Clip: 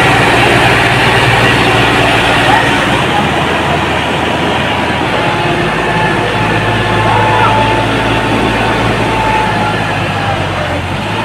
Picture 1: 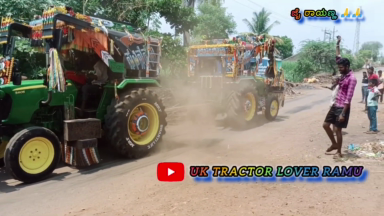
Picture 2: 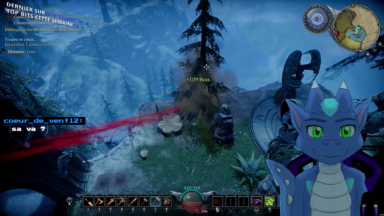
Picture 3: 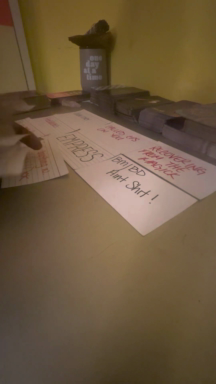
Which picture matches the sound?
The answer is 1